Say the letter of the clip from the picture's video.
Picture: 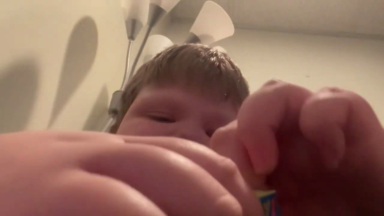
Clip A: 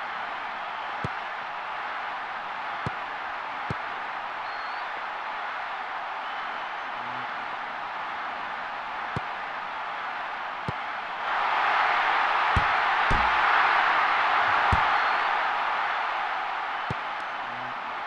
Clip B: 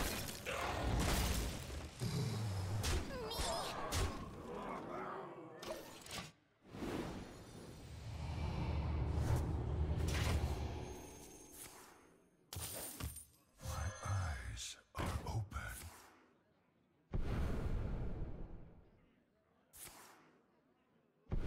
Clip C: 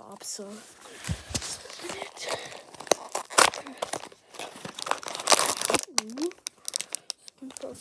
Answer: C